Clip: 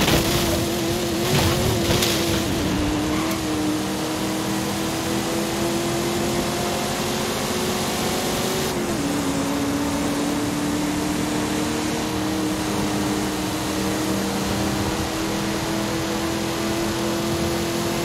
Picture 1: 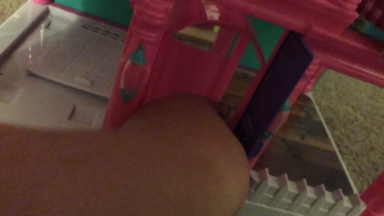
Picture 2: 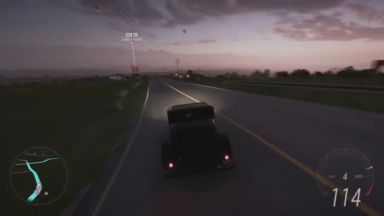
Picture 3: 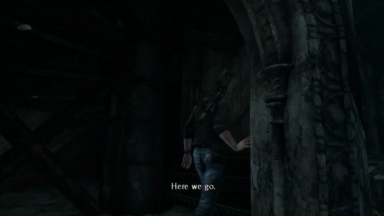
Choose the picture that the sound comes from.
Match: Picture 2